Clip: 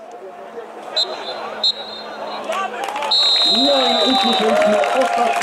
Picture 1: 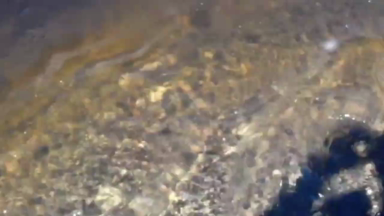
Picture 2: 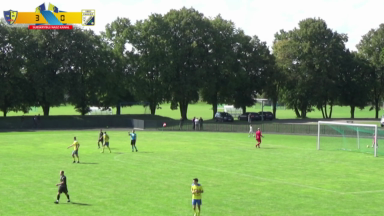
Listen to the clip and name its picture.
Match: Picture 2